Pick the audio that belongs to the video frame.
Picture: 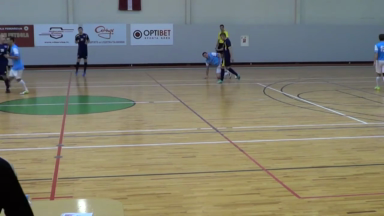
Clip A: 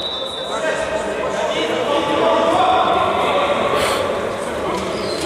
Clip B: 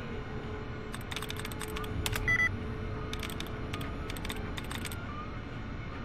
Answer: A